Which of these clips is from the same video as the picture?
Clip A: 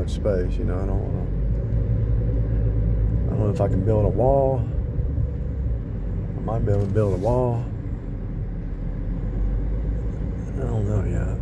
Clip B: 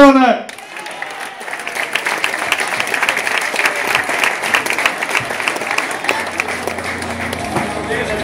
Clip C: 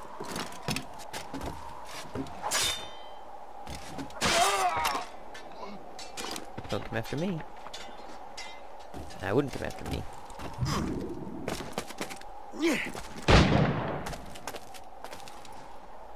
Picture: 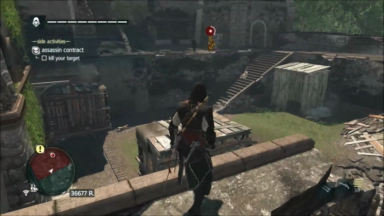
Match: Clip C